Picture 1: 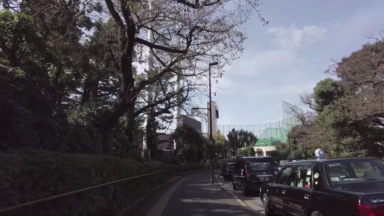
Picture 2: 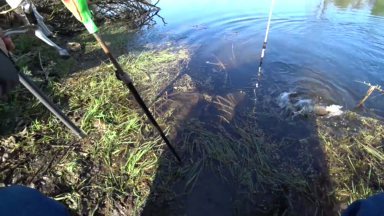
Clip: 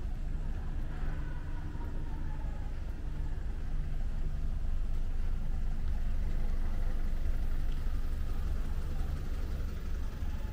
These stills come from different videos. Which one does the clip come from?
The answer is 1